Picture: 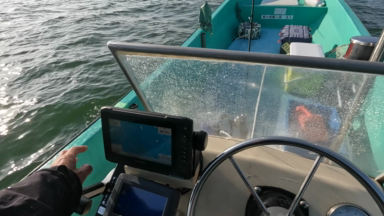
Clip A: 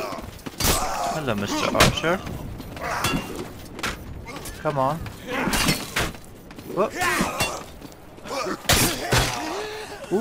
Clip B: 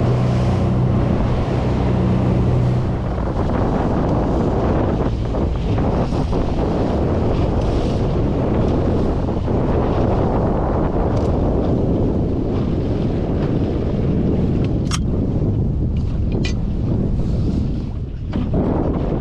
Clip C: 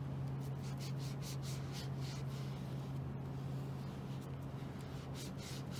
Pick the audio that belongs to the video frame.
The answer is B